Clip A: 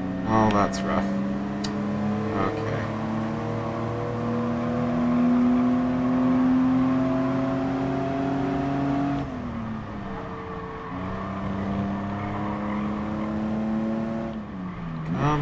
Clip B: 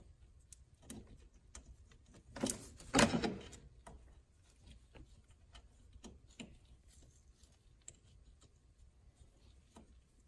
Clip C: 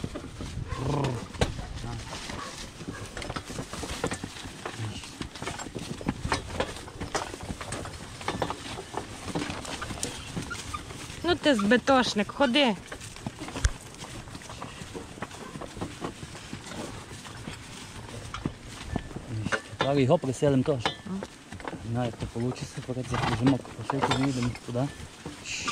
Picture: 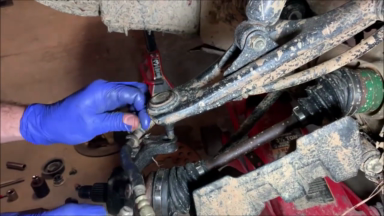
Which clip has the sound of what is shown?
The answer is B